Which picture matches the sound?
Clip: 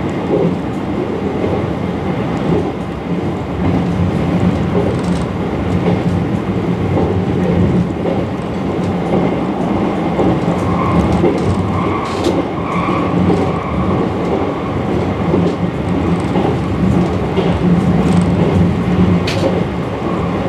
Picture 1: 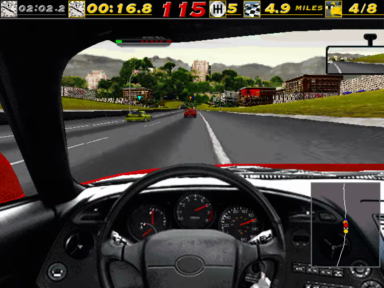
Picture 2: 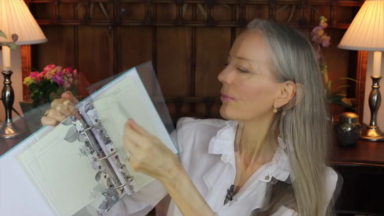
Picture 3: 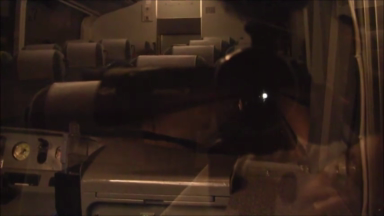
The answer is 3